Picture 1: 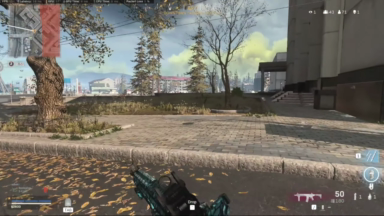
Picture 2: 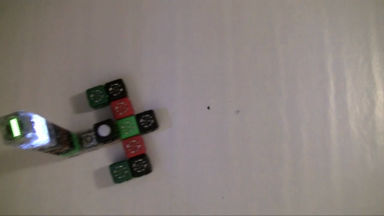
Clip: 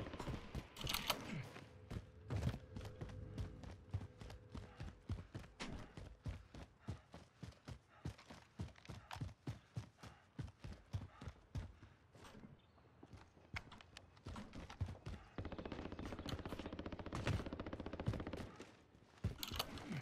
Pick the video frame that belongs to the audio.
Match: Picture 1